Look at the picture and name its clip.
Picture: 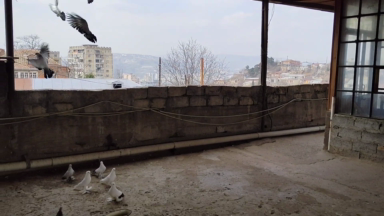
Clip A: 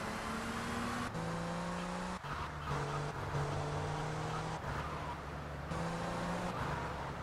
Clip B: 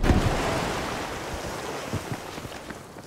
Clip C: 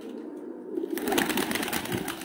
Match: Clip C